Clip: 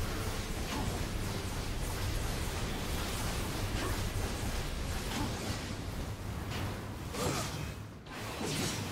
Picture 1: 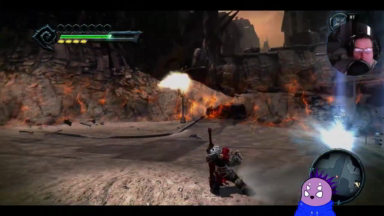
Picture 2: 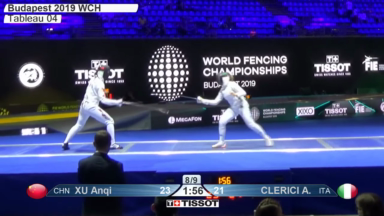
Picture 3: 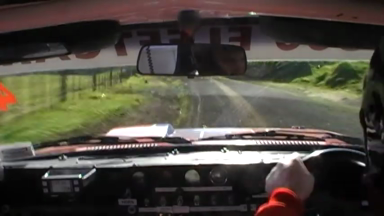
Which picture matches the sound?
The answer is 1